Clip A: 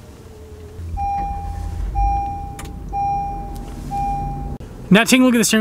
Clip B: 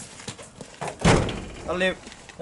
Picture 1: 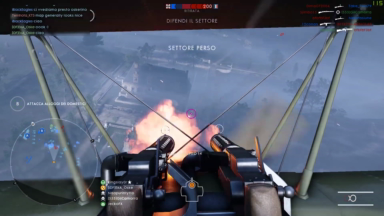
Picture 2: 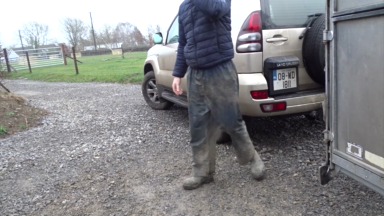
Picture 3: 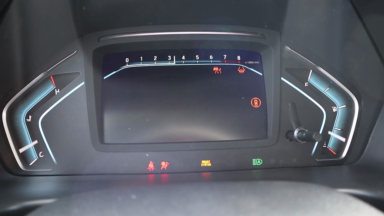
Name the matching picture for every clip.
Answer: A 3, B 2